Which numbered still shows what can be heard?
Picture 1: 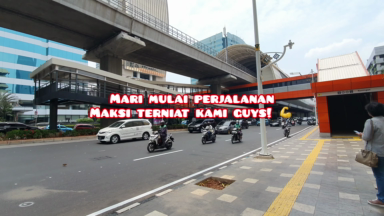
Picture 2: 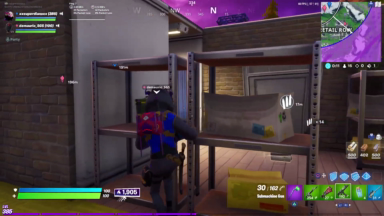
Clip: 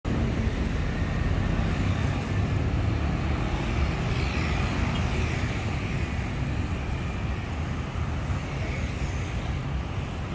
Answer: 1